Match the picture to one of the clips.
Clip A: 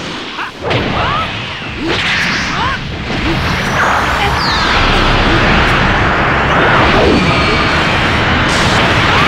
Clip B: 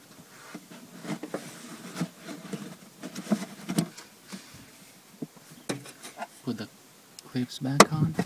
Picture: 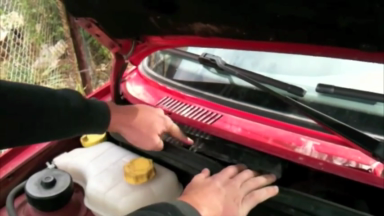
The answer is B